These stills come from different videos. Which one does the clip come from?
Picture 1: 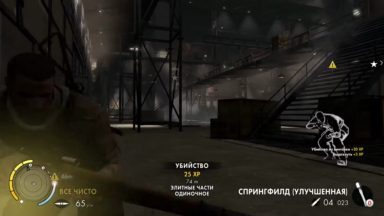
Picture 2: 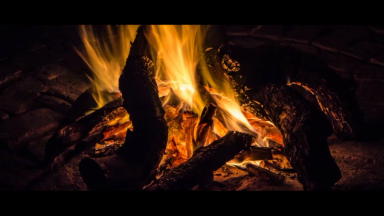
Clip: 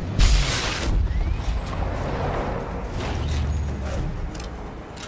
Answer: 1